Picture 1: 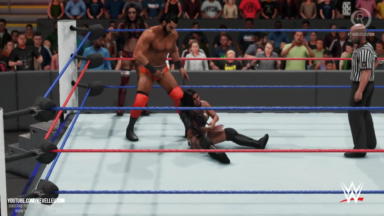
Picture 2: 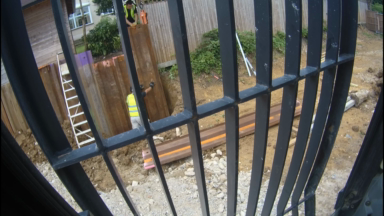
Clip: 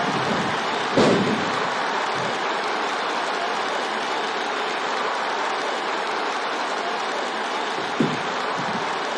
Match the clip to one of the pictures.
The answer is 1